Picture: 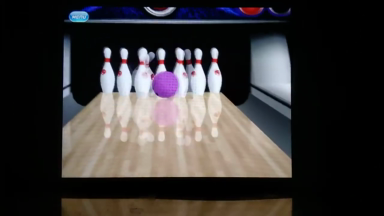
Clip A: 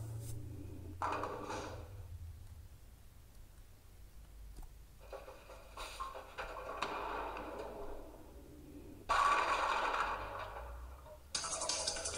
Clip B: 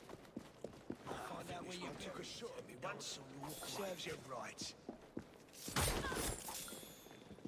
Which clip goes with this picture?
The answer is A